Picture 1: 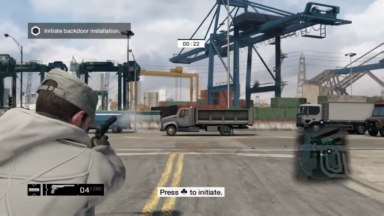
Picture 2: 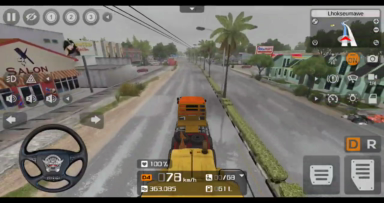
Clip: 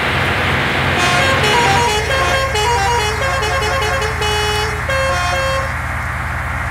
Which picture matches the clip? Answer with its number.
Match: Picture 2